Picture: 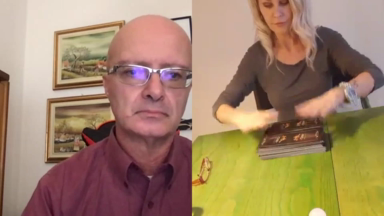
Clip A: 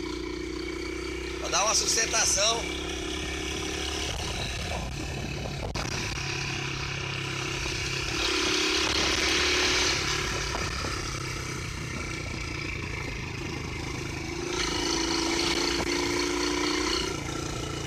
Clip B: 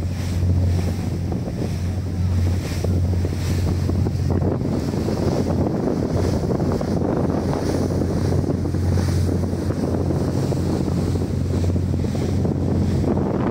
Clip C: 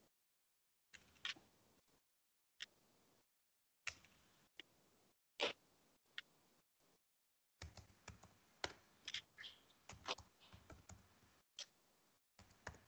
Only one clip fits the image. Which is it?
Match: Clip C